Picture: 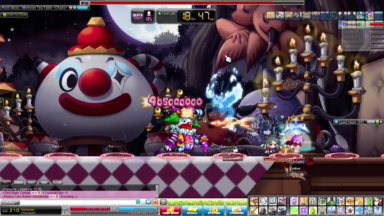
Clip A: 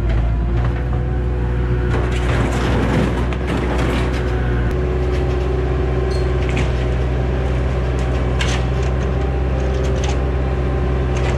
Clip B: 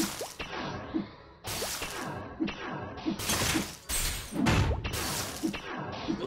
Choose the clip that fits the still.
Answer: B